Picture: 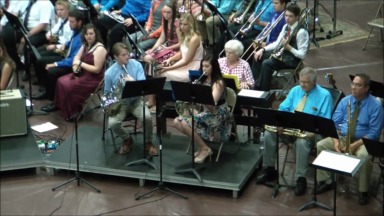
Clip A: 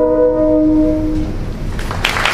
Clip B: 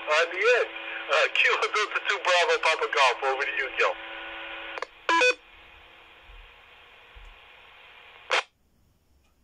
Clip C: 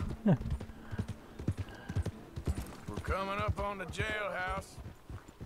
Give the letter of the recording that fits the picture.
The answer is A